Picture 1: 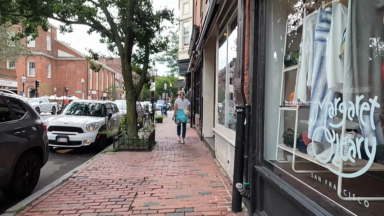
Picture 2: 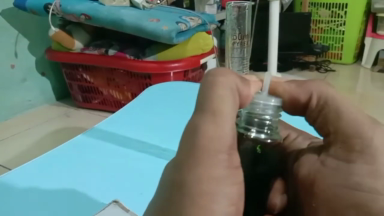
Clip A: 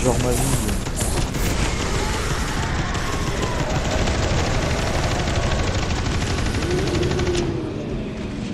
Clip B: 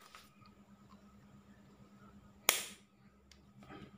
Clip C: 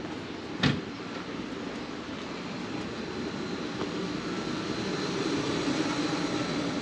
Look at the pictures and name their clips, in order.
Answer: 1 C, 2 B